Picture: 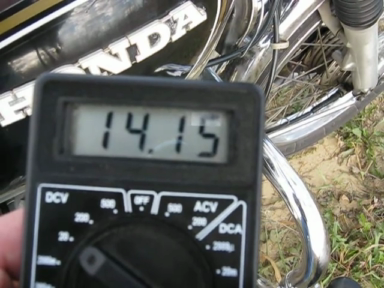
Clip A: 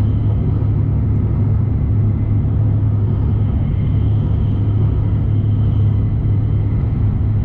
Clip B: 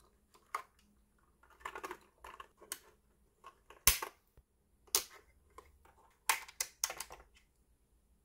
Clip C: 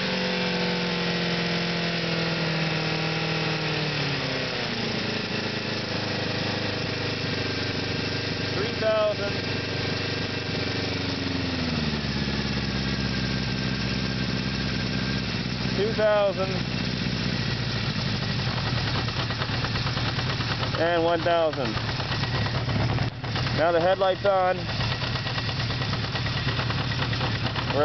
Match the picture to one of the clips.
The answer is C